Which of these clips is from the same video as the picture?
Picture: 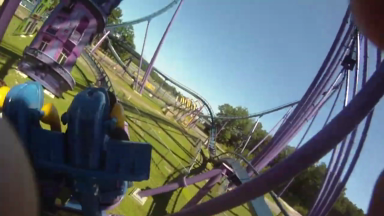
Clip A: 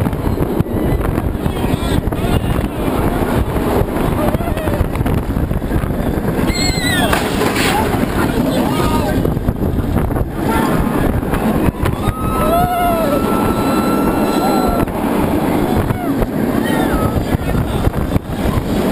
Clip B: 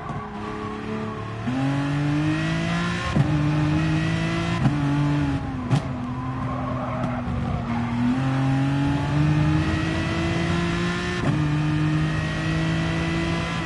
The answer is A